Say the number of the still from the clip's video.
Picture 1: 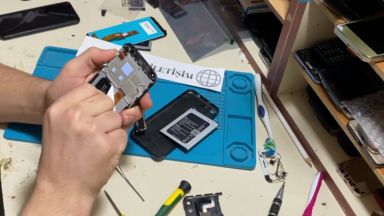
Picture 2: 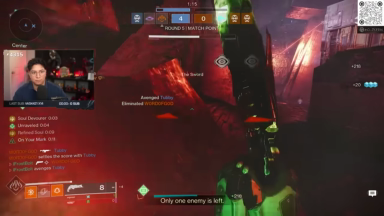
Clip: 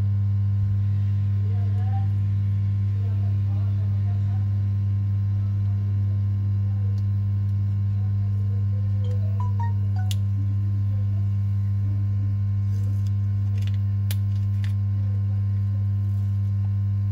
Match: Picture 1